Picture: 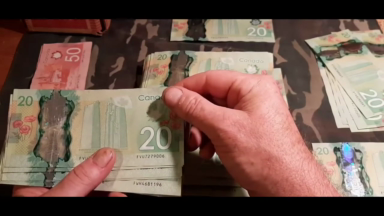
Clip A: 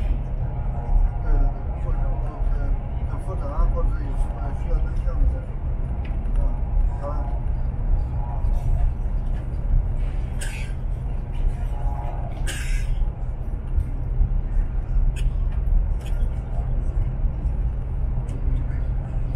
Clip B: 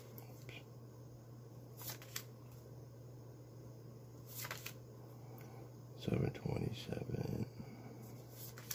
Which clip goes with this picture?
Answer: B